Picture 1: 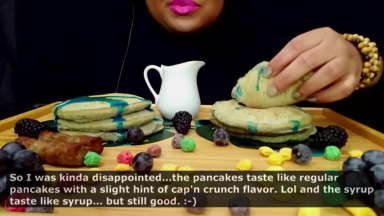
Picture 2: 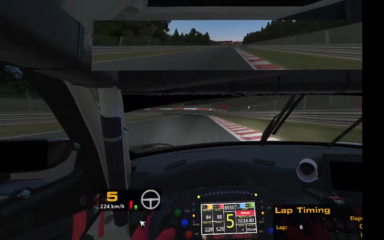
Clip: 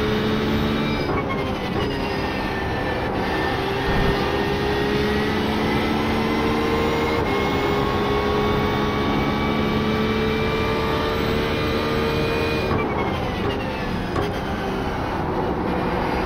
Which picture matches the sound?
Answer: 2